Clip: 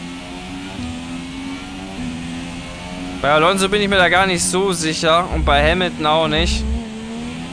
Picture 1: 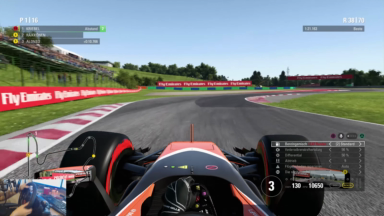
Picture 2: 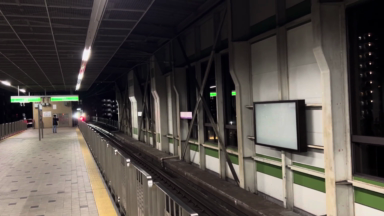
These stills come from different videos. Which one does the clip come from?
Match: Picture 1